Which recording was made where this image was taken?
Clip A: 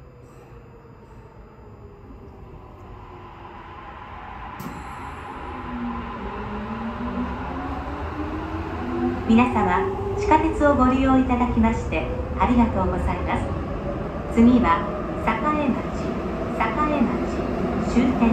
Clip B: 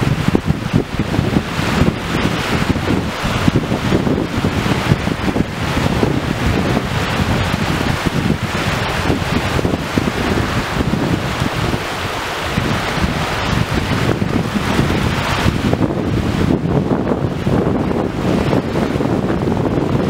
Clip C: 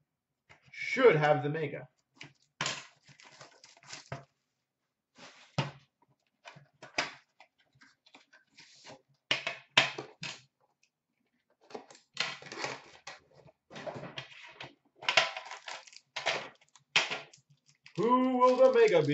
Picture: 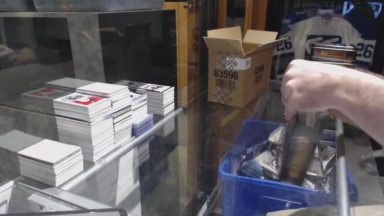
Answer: C